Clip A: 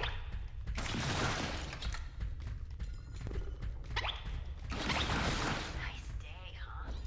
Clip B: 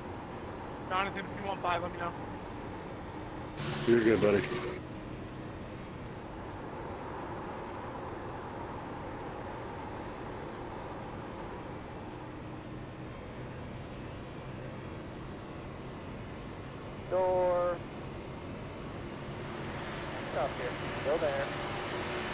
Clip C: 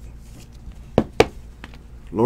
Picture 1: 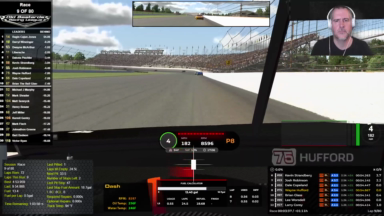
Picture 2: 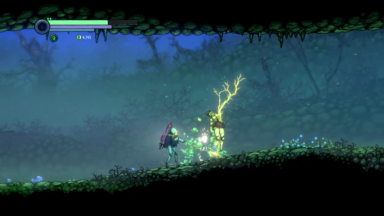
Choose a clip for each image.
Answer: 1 B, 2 A